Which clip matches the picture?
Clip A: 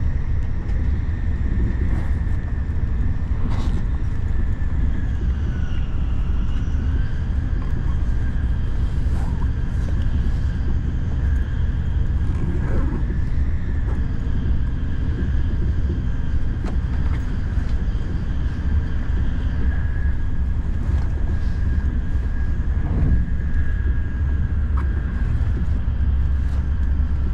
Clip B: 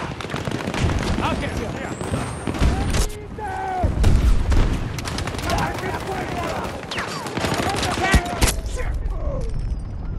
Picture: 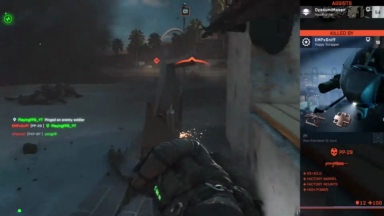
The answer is B